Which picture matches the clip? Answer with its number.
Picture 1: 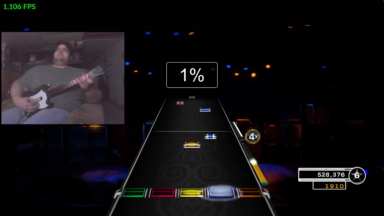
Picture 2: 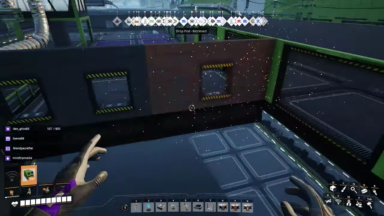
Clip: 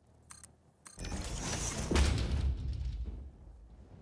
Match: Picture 2